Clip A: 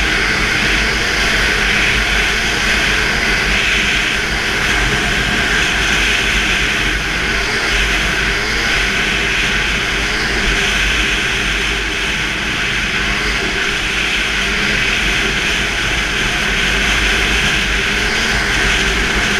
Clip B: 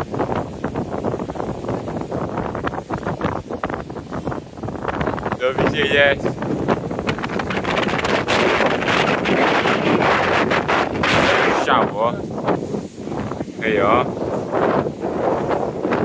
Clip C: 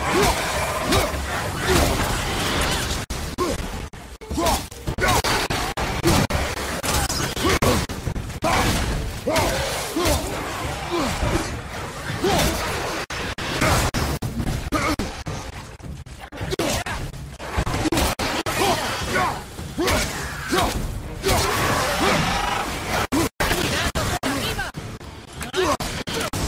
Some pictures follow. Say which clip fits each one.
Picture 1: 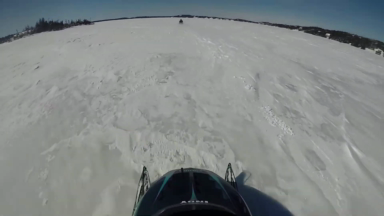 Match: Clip A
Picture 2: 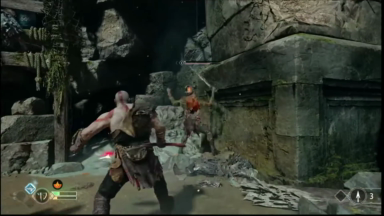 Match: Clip C